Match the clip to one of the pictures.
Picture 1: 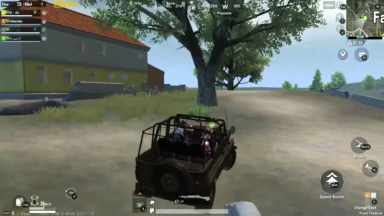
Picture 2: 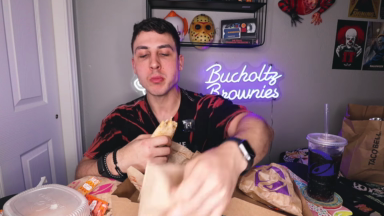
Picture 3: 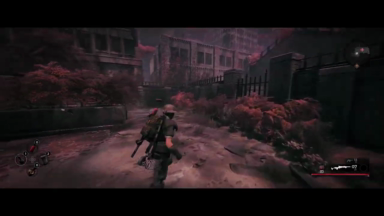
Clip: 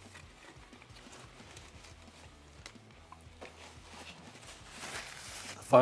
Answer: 2